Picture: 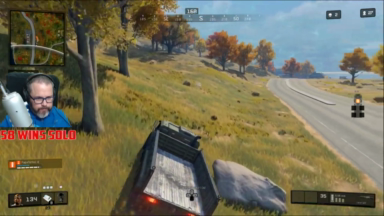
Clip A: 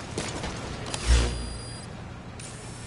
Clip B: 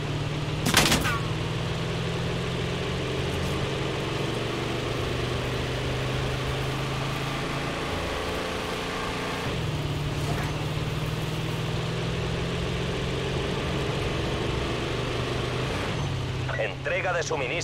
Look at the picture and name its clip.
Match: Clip B